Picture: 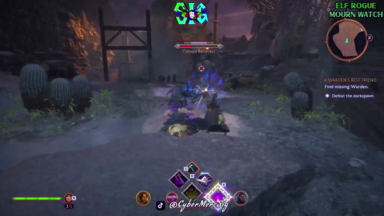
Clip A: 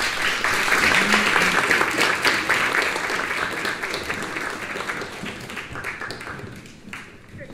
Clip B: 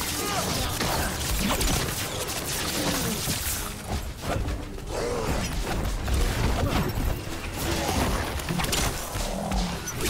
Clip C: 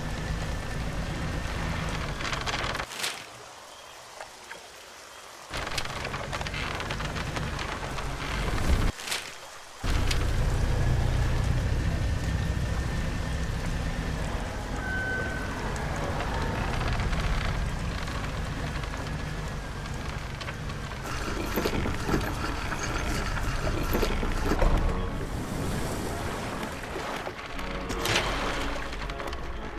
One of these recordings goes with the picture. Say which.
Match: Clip B